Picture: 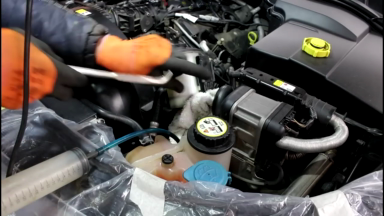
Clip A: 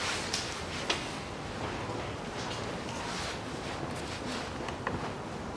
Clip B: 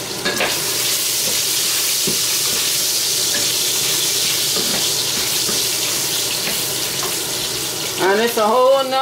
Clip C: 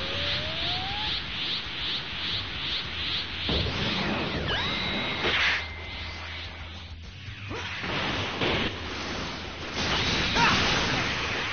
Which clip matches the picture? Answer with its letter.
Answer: A